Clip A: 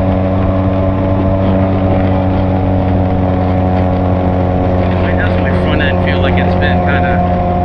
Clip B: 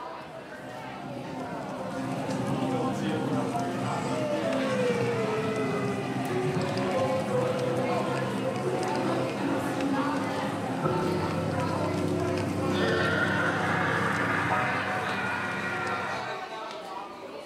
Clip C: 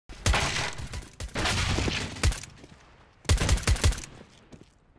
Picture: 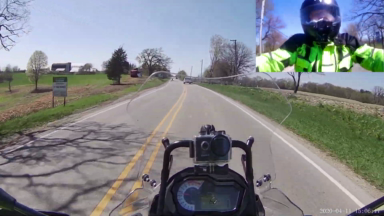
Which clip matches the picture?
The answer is A